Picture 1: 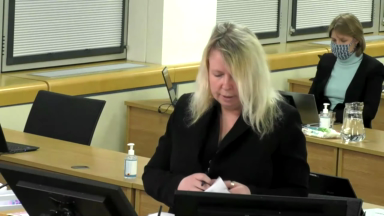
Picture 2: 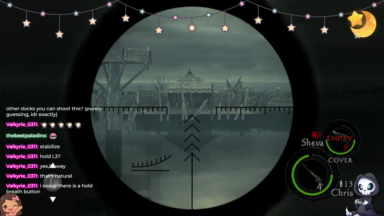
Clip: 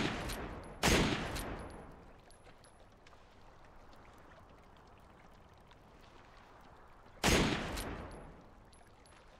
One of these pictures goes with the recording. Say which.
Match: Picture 2